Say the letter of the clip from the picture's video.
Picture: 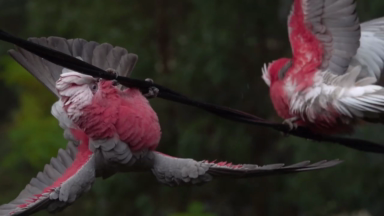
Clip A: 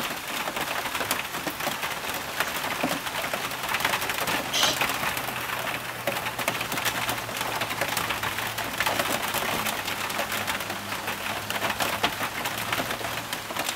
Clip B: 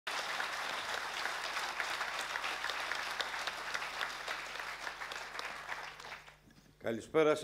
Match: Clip A